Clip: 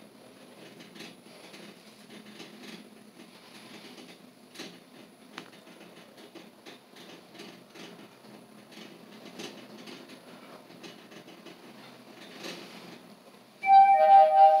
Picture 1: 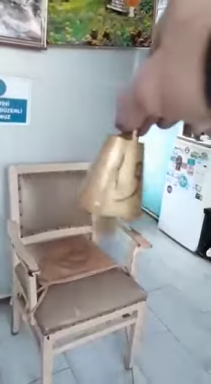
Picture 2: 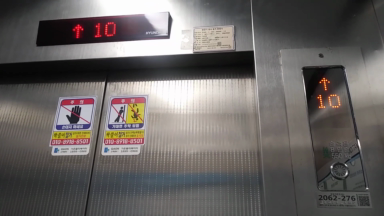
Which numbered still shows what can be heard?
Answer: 2